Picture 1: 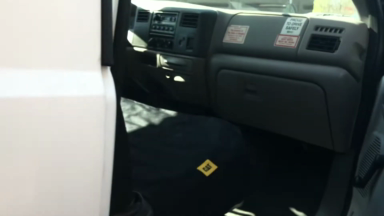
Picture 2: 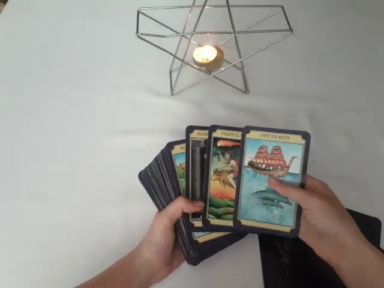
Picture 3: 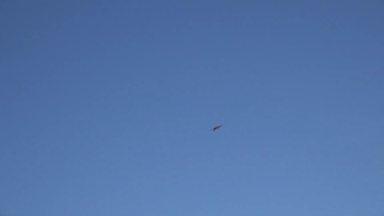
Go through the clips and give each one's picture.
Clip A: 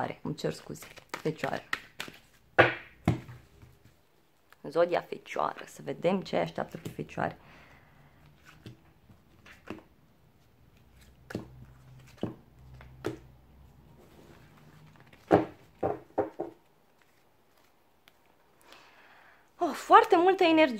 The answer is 2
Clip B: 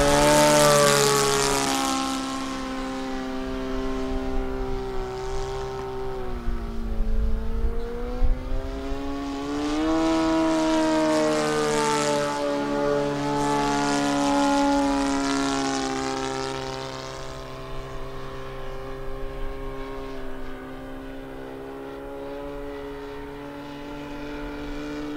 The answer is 3